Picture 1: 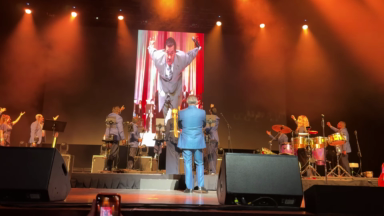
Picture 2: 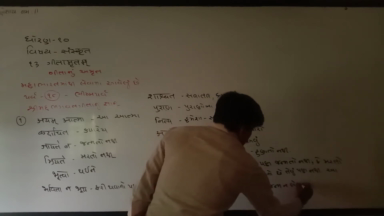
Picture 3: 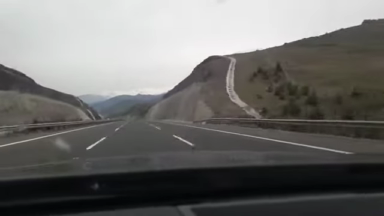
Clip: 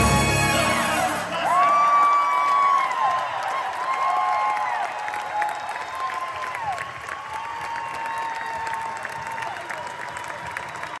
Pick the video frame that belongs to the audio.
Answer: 1